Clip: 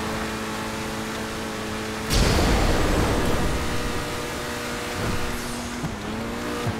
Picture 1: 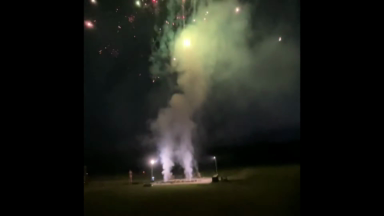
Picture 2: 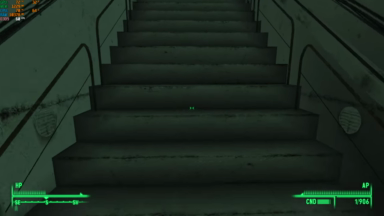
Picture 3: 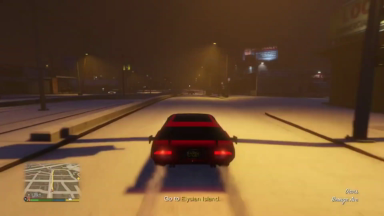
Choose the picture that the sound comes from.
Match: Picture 3